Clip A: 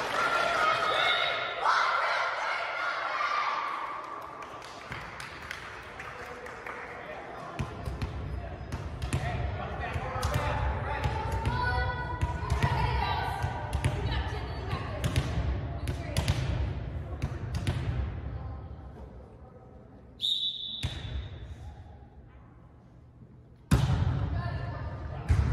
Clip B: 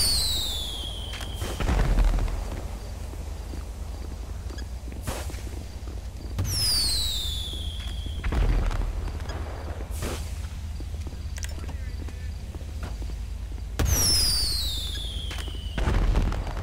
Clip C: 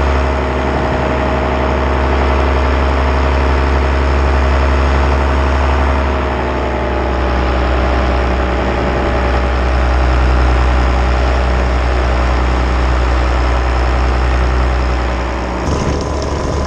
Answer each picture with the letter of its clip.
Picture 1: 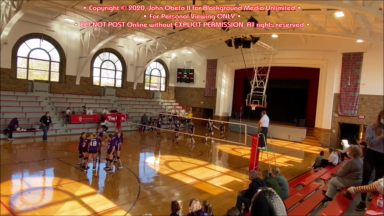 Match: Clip A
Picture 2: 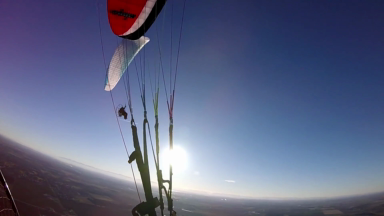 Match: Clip C